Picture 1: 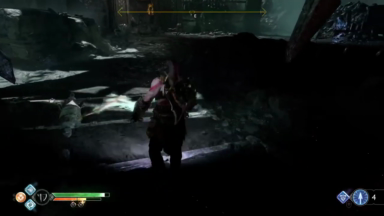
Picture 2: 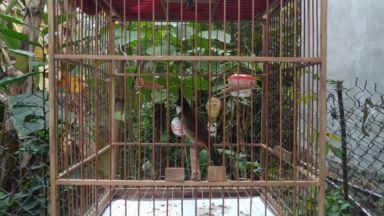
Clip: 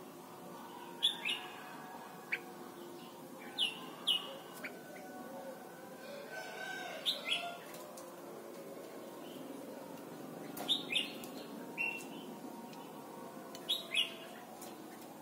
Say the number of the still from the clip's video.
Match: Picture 2